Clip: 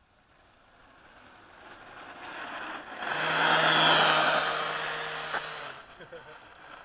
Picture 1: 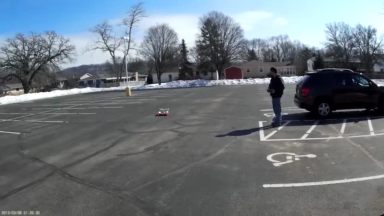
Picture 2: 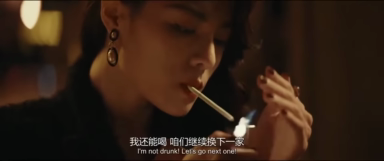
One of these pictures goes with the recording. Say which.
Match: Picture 1